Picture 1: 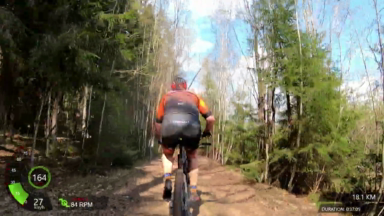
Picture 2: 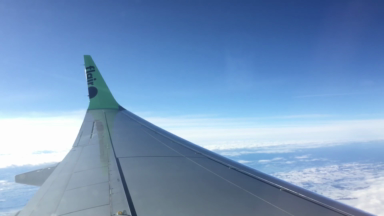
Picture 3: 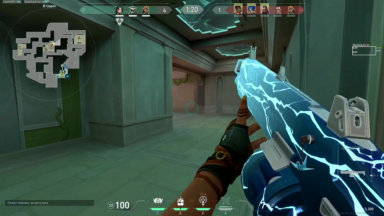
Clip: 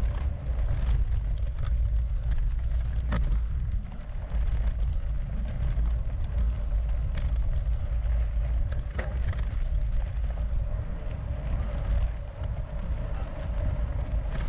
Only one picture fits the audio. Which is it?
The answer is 1